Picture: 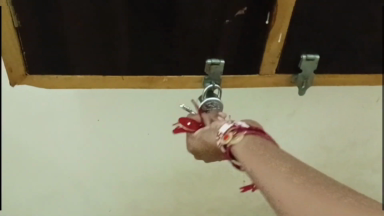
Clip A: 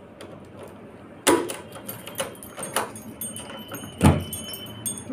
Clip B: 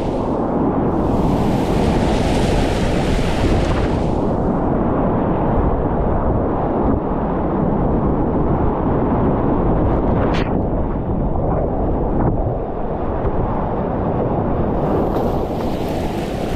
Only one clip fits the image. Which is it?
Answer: A